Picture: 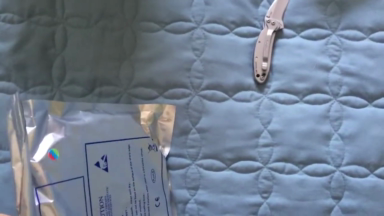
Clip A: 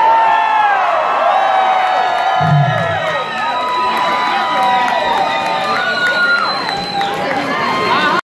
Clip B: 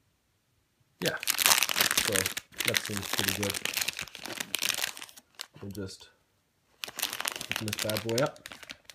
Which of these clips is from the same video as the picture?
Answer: B